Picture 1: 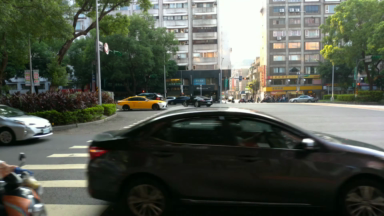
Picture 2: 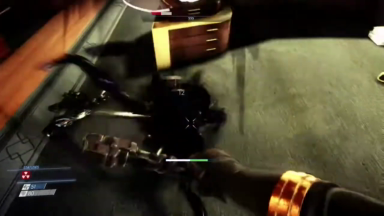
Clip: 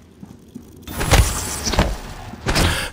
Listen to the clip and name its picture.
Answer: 2